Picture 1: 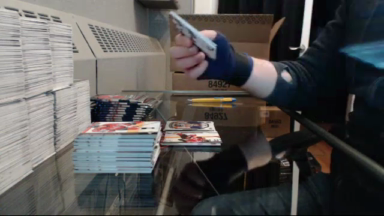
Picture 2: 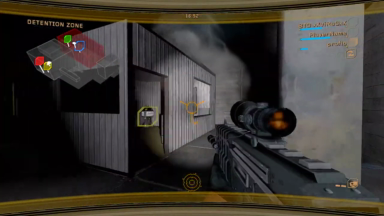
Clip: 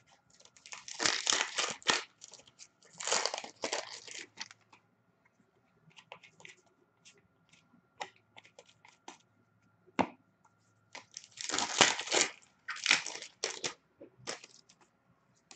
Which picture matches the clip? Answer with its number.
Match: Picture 1